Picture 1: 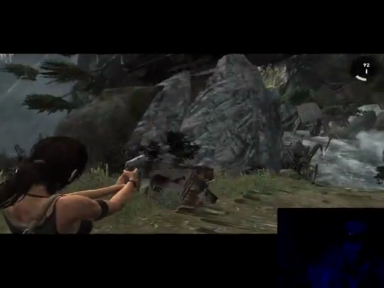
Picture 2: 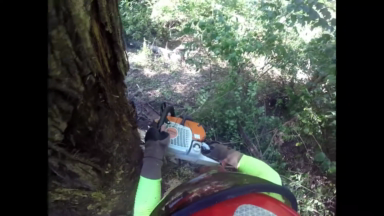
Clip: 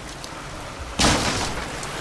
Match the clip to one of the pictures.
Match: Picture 1